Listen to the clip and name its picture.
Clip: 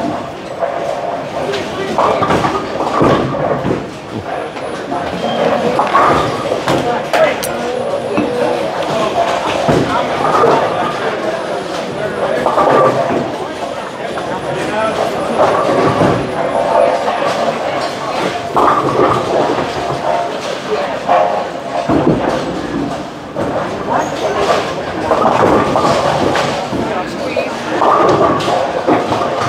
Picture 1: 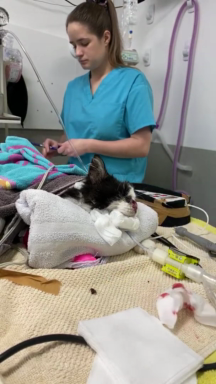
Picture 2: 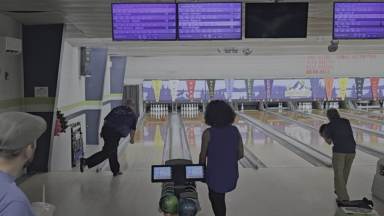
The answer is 2